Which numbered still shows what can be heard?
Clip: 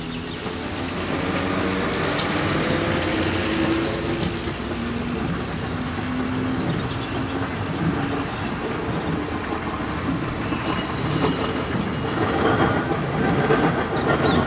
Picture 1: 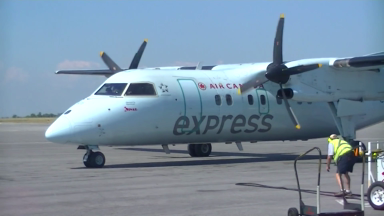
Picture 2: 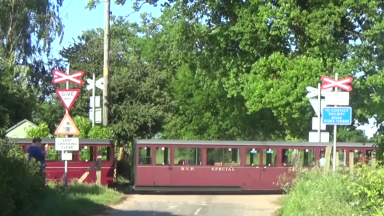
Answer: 2